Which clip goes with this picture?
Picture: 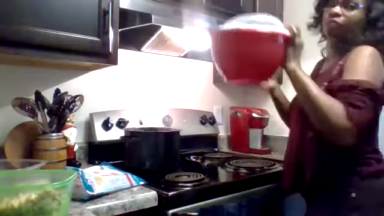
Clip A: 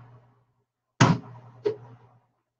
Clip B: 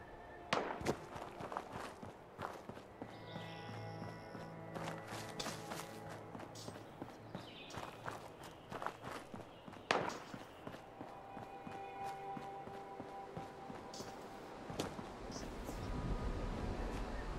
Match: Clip A